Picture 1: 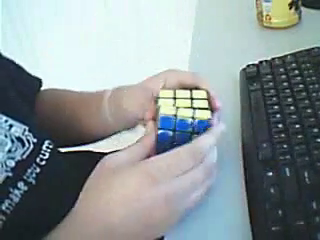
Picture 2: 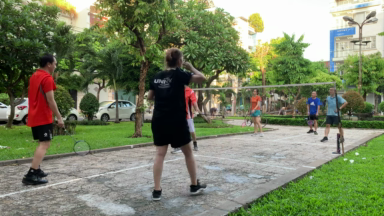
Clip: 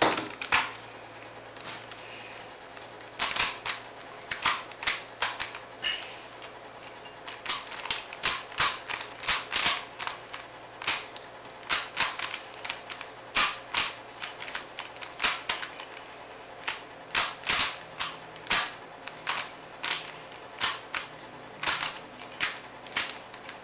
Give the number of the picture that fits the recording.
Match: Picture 1